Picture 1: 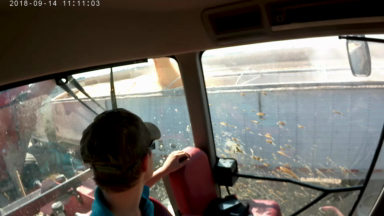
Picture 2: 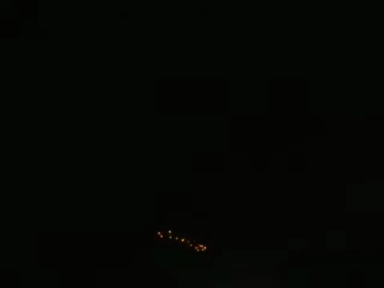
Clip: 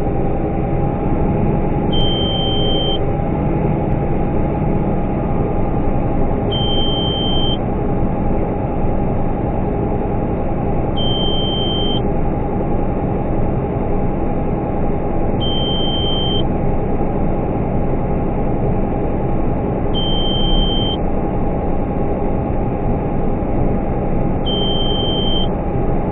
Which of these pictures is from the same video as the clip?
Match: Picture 1